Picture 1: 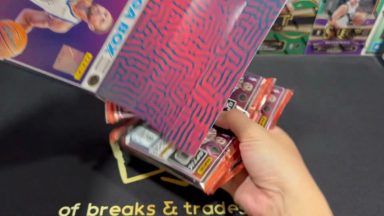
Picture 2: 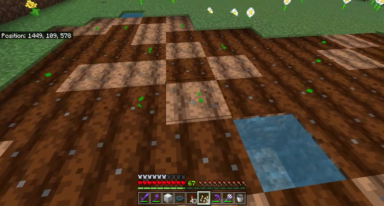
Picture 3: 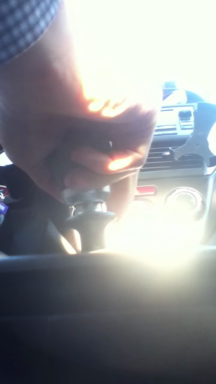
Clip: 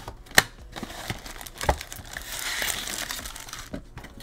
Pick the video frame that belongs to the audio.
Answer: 1